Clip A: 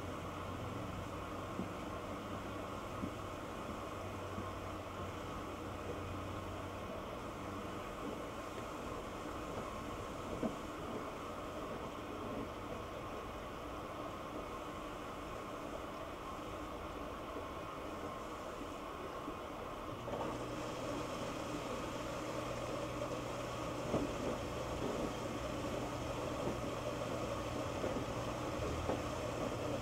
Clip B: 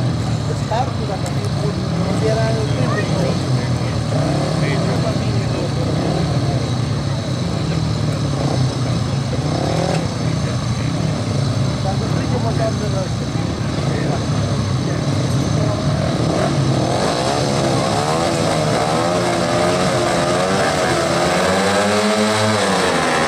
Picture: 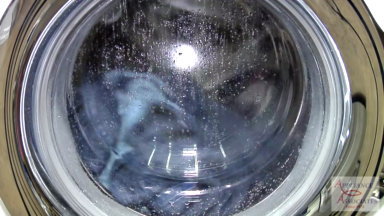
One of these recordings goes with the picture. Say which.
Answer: A